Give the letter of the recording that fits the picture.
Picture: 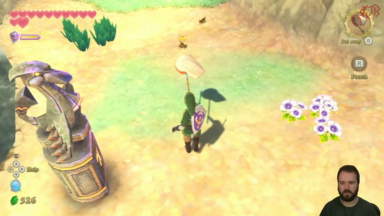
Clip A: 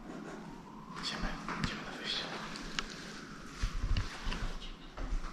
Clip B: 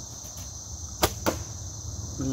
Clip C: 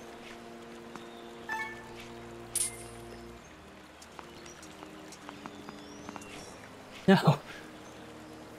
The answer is C